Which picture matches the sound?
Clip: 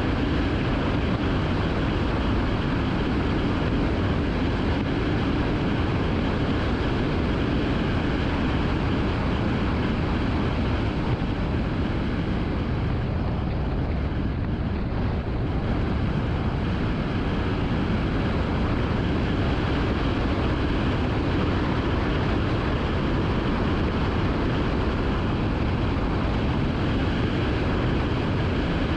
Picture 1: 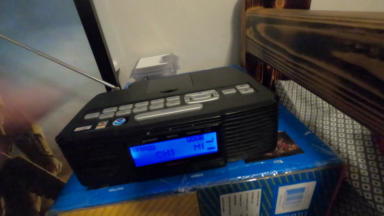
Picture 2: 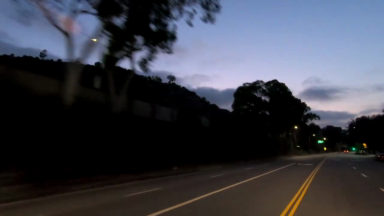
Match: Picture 2